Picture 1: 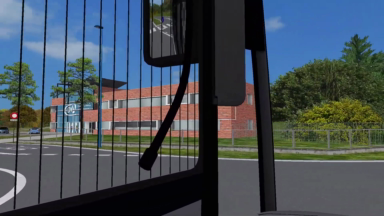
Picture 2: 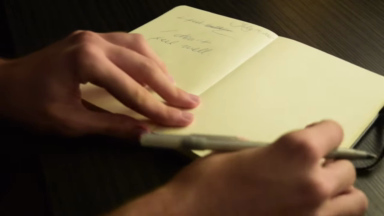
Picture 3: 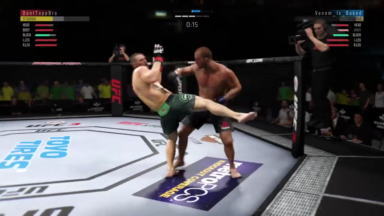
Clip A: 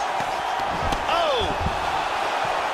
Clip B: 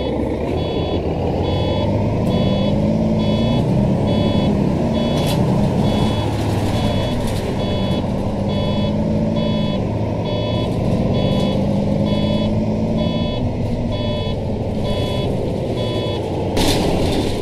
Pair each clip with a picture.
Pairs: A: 3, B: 1